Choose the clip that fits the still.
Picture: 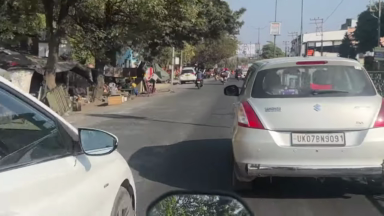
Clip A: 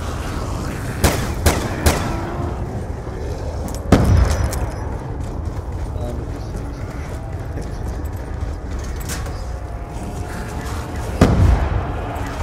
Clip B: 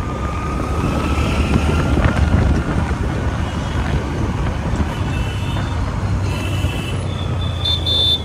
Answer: B